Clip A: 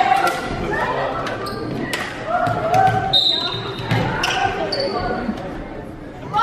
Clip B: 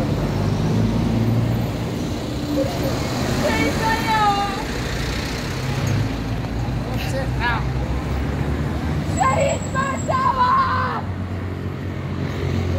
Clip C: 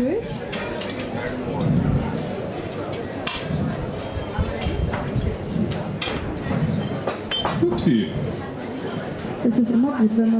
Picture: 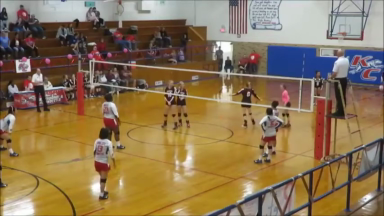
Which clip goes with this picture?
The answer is A